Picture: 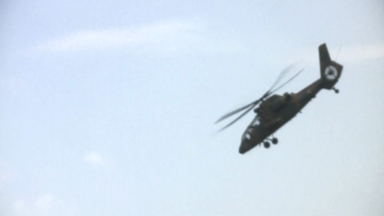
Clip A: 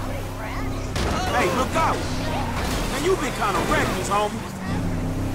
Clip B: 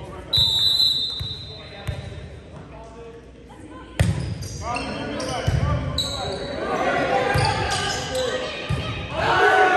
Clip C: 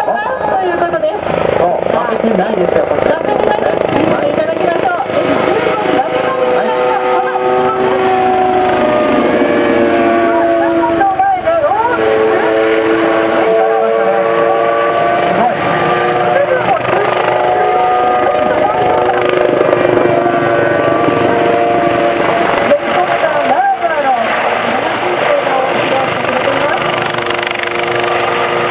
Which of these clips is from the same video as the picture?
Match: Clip C